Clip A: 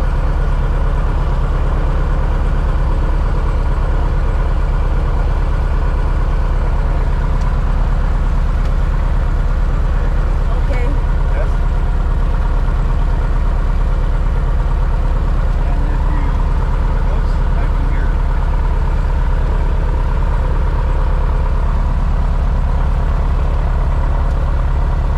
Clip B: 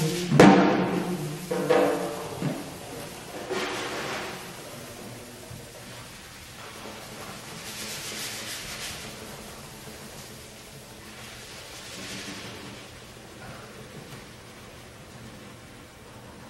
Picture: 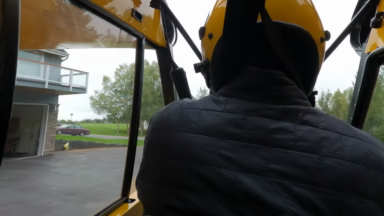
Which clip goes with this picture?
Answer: A